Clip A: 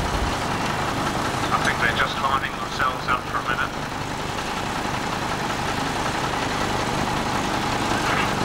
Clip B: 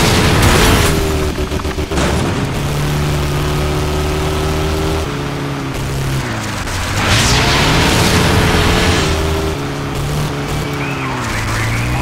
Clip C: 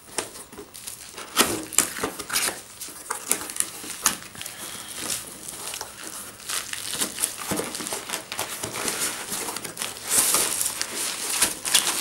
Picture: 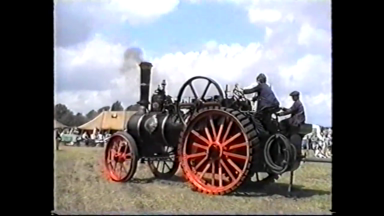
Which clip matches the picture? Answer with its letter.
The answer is A